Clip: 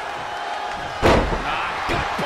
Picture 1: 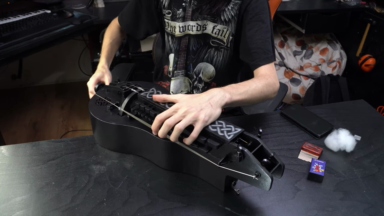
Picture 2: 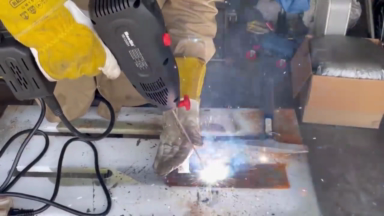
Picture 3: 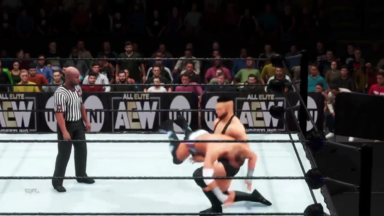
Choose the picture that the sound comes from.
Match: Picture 3